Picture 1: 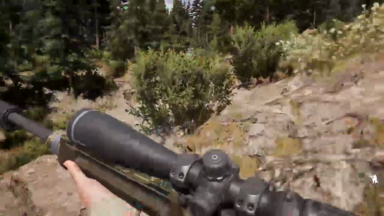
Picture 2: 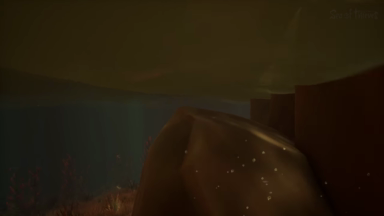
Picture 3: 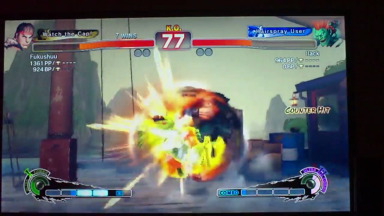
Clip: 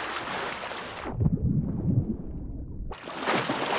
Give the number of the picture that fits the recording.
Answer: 2